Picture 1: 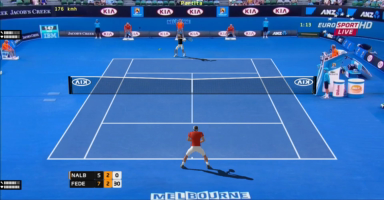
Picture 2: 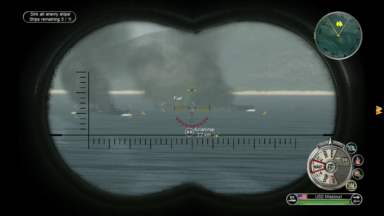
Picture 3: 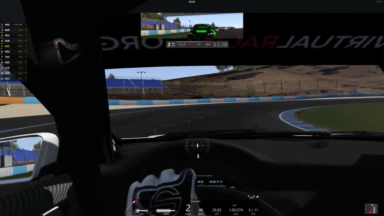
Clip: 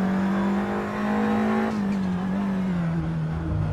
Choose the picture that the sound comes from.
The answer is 3